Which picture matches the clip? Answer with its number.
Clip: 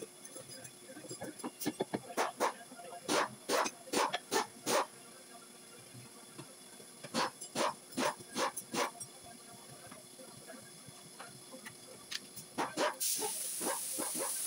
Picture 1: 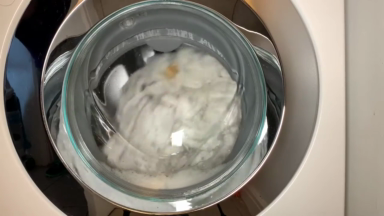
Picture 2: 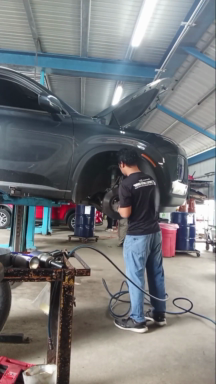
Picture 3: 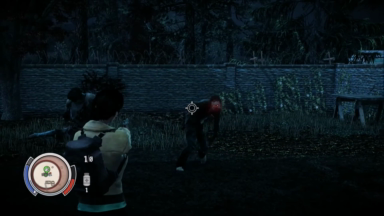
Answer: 2